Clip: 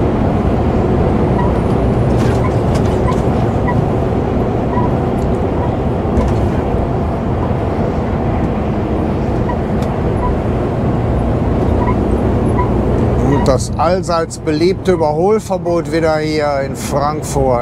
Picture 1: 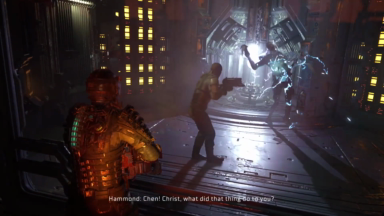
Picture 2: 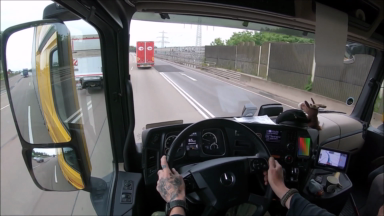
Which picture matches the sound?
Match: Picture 2